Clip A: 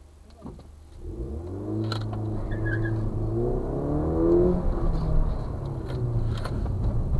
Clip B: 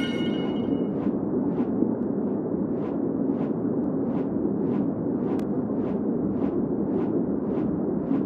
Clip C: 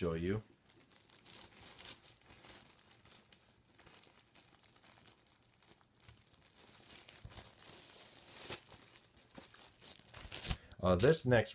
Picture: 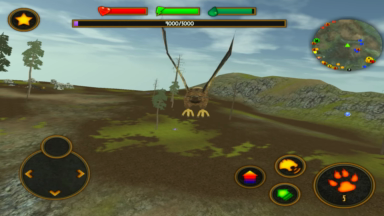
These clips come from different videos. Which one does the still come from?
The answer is B